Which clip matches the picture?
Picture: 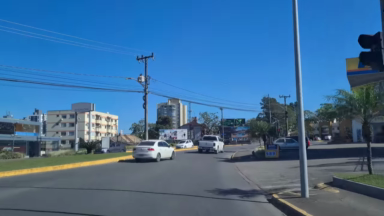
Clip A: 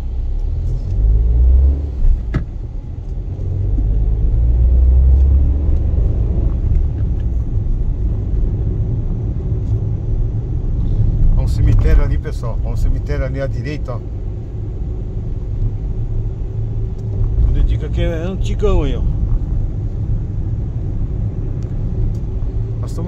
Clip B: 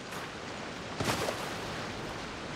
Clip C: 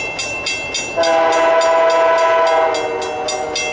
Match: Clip A